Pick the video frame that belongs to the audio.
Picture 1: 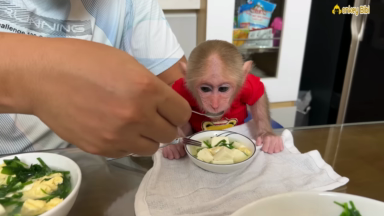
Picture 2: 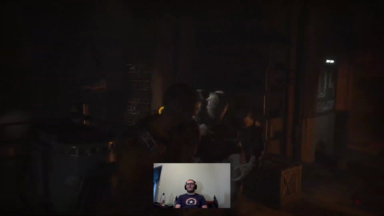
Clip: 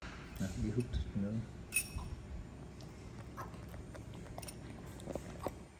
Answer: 1